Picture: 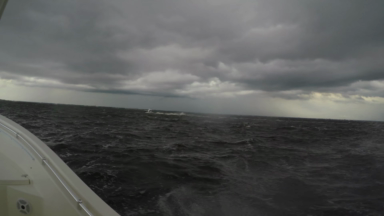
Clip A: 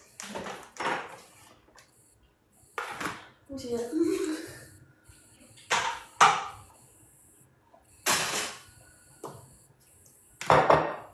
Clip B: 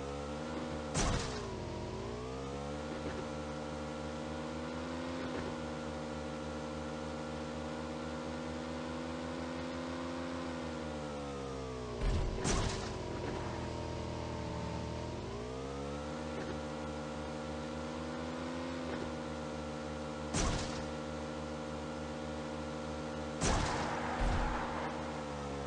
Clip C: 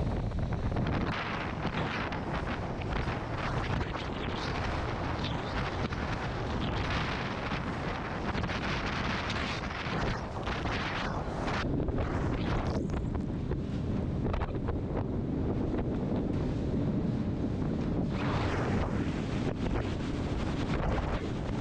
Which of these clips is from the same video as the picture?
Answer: C